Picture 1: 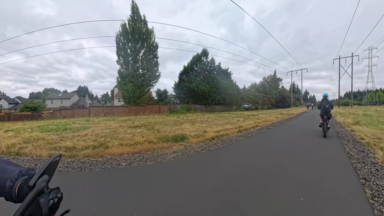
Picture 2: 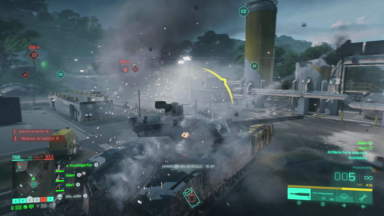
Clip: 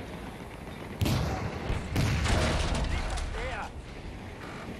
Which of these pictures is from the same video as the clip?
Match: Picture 2